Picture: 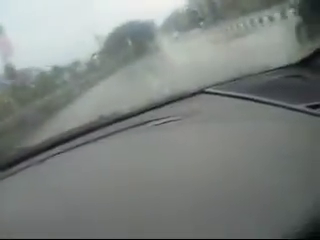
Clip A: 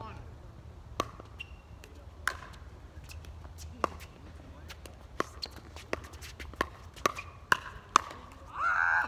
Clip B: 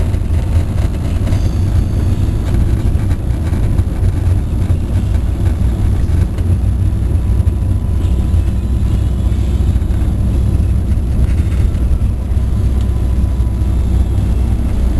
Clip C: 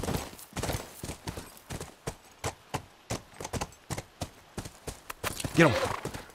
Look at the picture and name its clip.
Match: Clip B